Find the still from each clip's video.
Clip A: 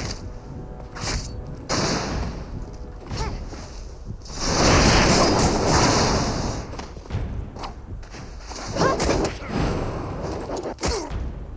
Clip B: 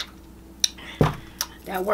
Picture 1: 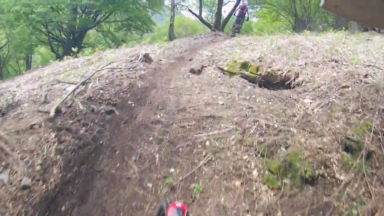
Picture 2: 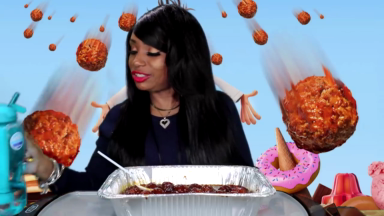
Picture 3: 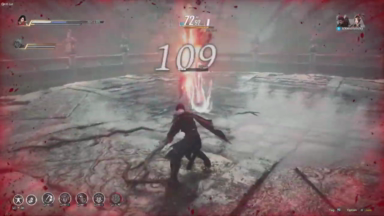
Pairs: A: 3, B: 2